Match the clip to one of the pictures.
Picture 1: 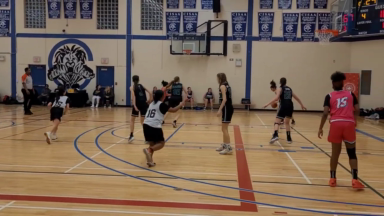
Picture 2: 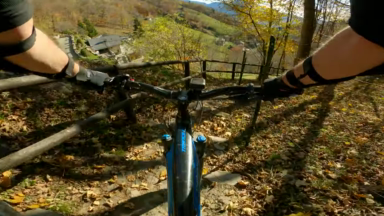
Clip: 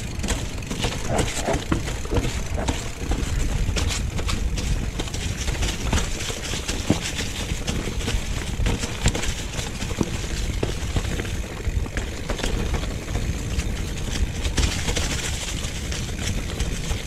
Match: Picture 2